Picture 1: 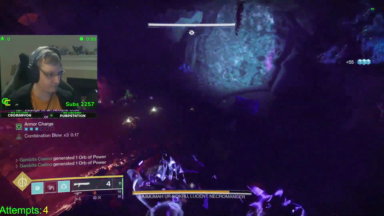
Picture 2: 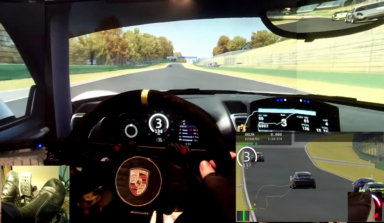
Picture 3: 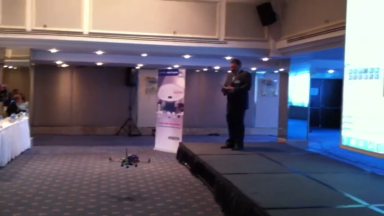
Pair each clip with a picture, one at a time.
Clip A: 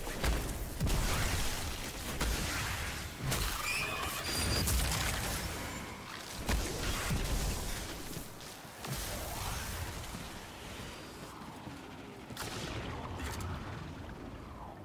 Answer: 1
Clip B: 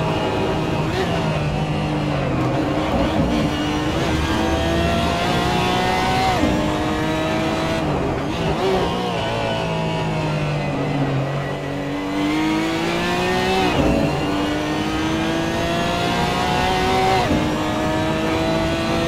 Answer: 2